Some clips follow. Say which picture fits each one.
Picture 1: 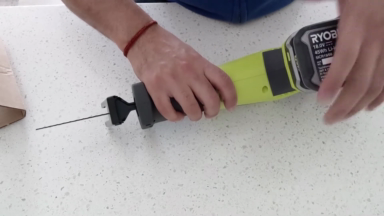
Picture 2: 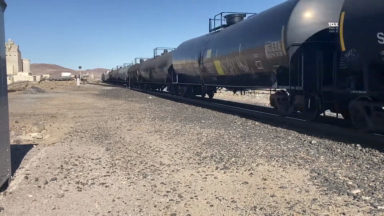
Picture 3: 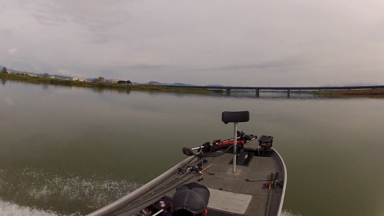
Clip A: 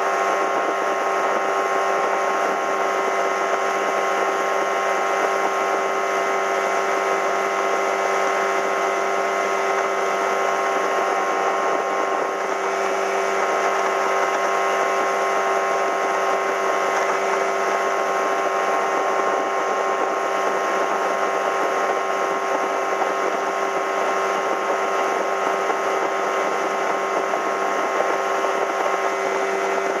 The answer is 3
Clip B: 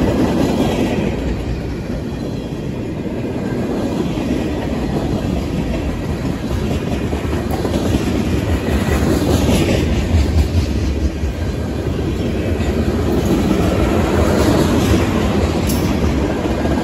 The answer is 2